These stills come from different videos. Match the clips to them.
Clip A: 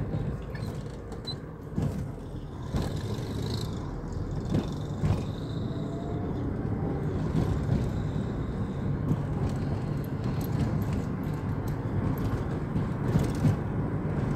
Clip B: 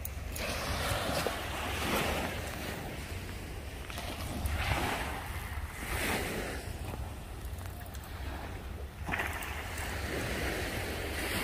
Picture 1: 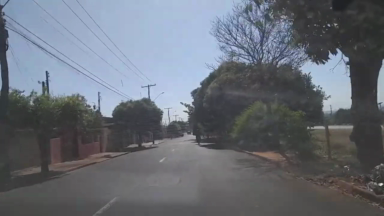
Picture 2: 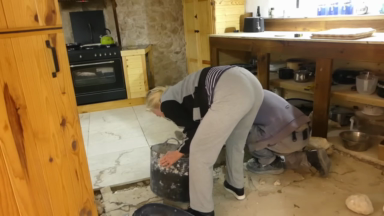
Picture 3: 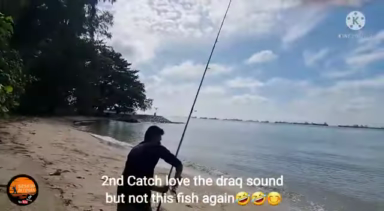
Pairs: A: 1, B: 3